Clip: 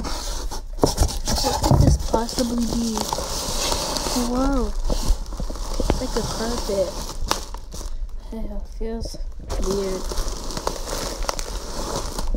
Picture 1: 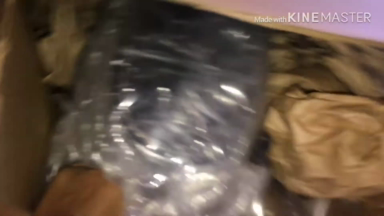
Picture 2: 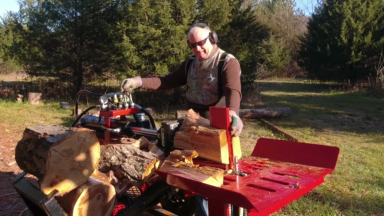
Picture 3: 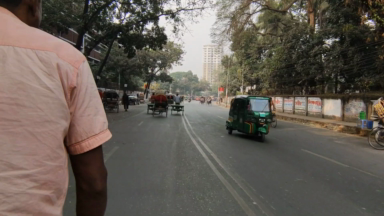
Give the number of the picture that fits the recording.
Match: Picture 1